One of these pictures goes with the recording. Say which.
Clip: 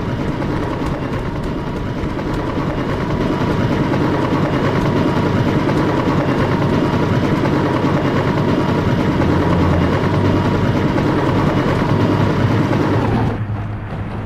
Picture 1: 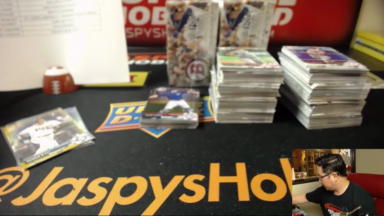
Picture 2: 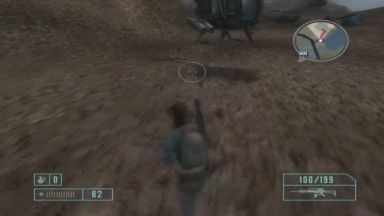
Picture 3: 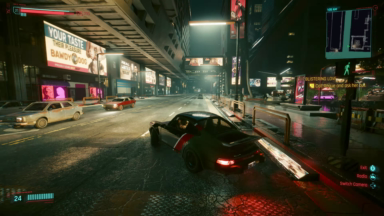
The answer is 2